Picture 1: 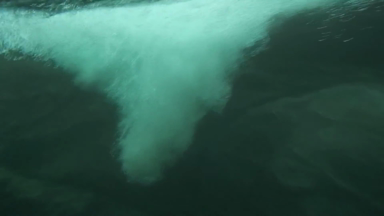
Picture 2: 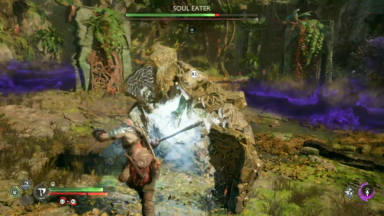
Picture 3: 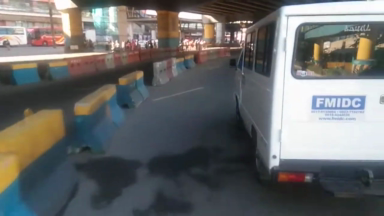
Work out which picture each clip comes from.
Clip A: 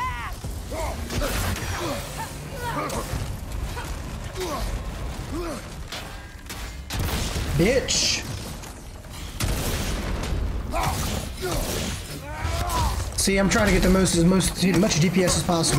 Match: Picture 2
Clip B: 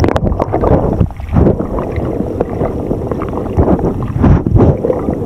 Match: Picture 1